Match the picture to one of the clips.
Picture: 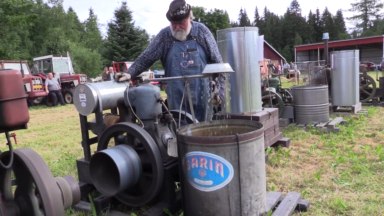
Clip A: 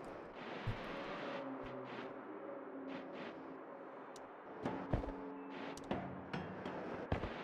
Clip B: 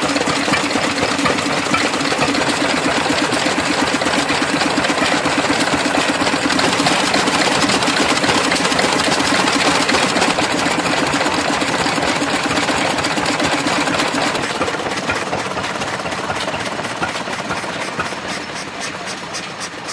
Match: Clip B